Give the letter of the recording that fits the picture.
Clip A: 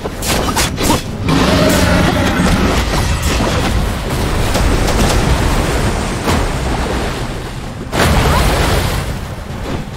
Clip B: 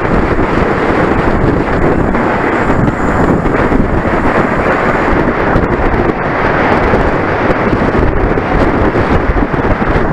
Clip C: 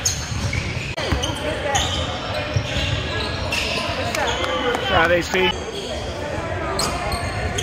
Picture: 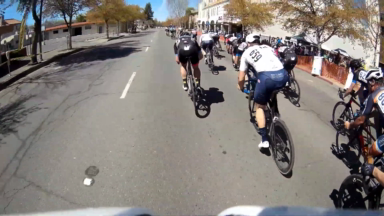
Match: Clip B